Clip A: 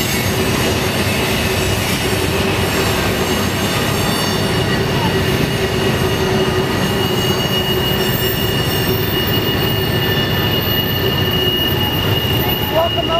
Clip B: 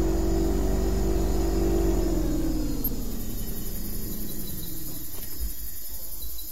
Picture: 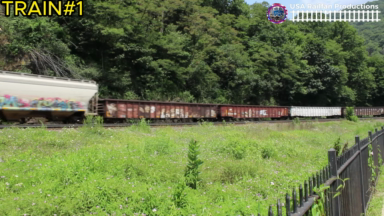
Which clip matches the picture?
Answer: A